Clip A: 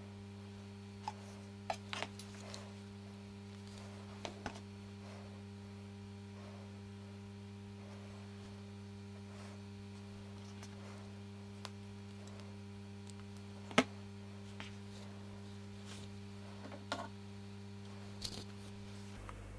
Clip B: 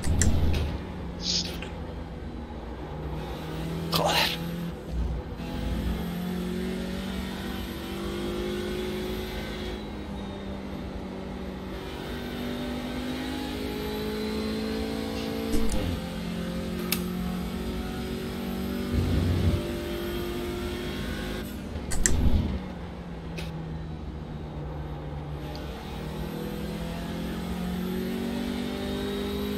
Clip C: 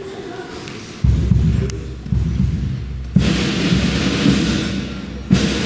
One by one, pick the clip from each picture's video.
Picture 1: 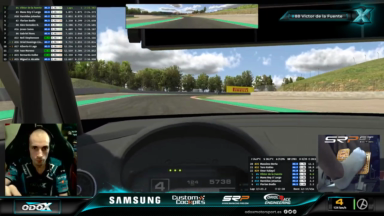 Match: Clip B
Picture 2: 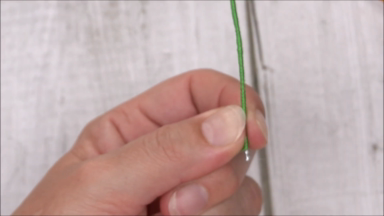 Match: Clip A